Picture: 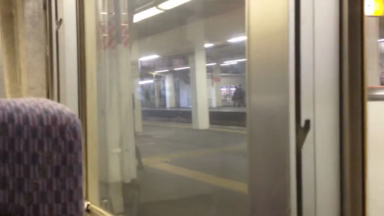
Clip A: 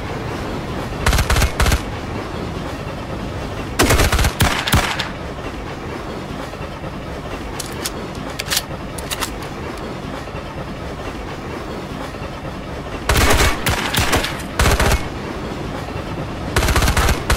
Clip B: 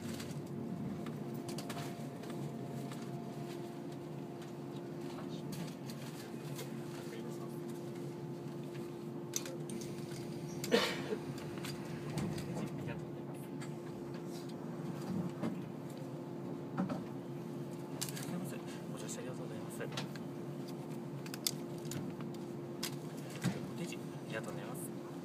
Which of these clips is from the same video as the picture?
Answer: B